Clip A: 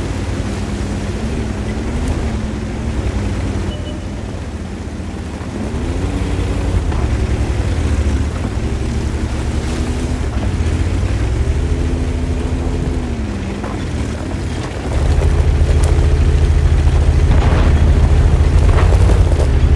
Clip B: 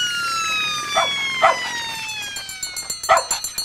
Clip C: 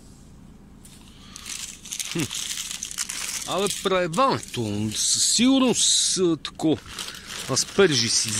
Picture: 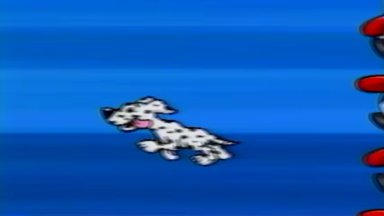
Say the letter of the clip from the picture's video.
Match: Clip B